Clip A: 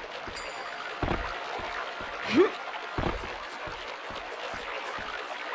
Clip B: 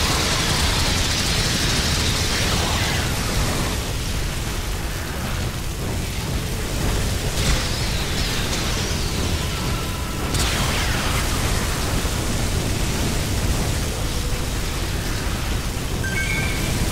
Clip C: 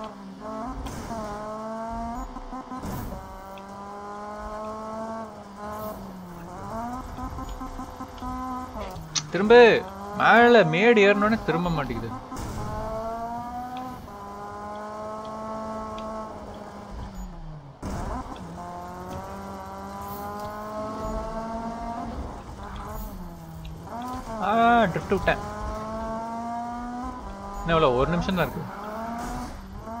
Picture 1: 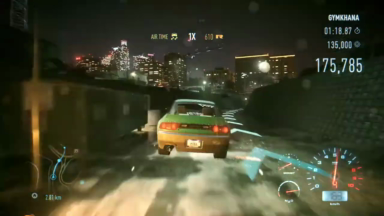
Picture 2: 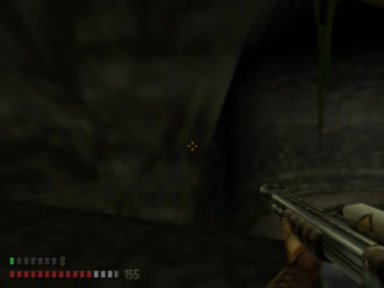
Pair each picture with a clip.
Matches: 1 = C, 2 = A